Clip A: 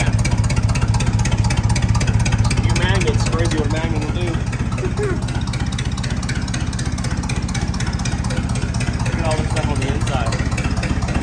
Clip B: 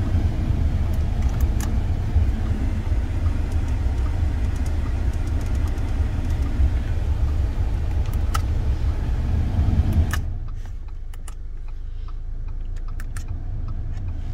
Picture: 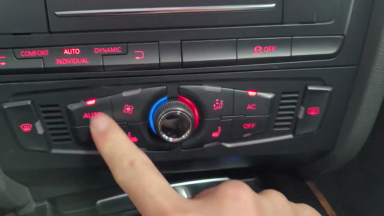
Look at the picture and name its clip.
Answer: B